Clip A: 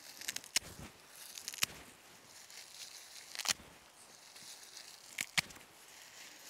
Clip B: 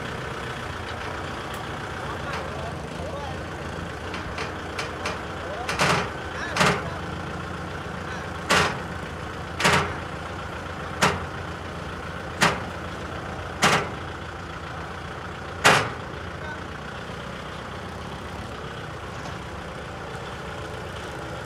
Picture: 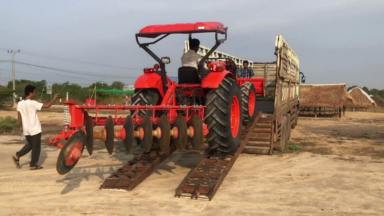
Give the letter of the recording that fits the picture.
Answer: B